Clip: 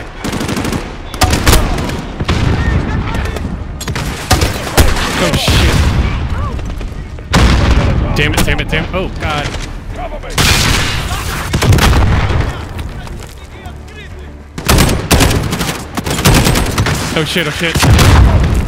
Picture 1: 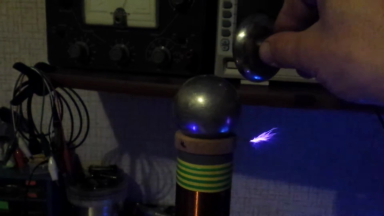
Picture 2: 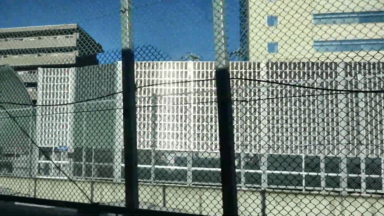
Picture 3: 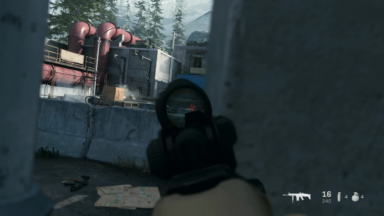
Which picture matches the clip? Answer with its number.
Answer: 3